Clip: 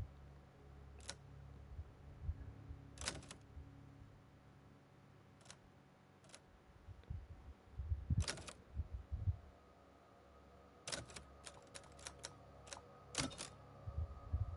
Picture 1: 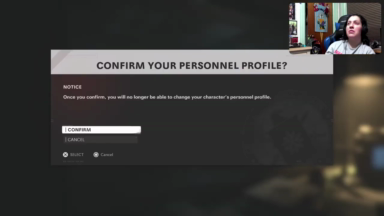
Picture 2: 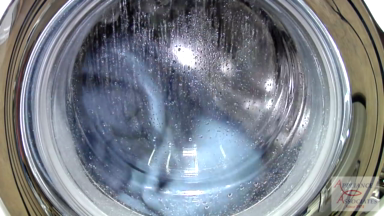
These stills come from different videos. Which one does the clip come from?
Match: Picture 1